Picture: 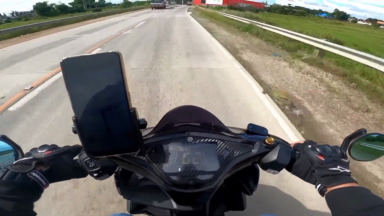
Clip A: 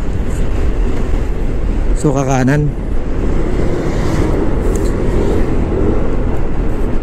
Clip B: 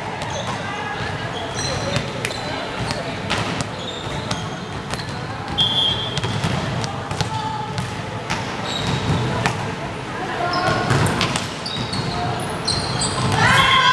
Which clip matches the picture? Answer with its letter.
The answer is A